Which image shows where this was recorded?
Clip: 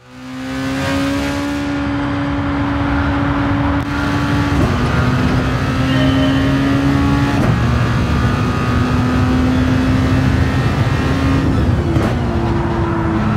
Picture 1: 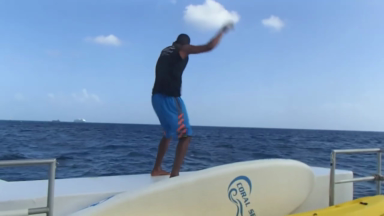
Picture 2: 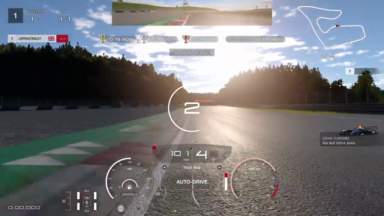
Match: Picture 2